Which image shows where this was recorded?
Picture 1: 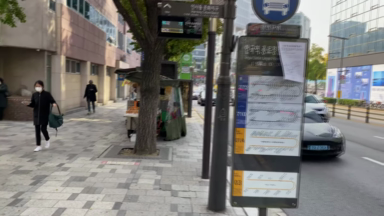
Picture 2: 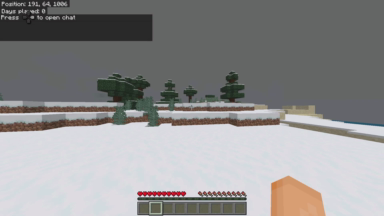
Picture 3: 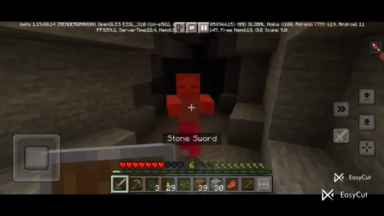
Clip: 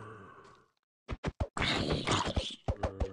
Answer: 3